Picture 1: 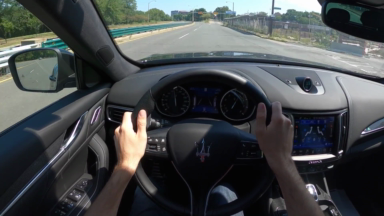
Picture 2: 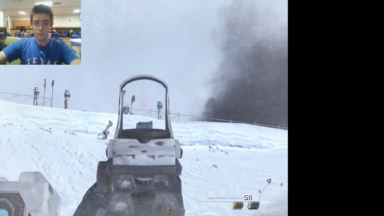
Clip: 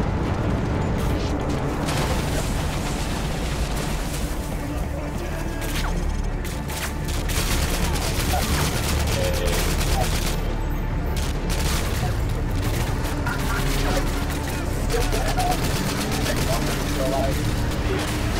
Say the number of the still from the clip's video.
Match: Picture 2